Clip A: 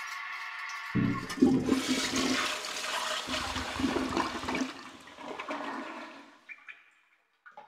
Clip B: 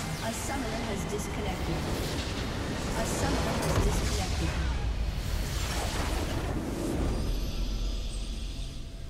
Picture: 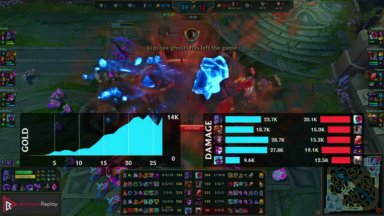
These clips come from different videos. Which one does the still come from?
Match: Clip B